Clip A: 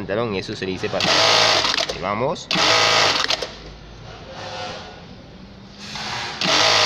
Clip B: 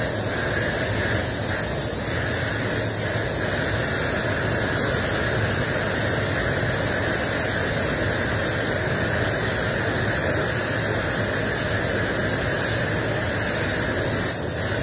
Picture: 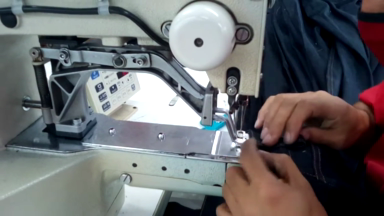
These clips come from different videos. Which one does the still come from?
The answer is A